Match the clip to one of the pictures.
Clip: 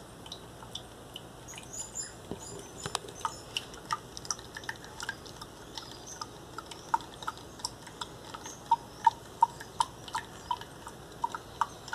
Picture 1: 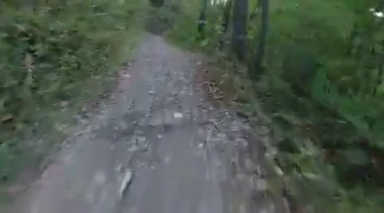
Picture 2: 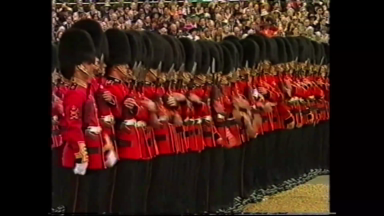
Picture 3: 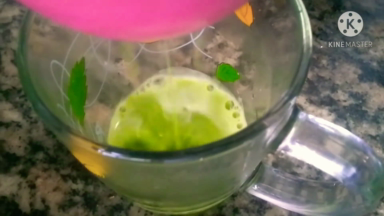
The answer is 3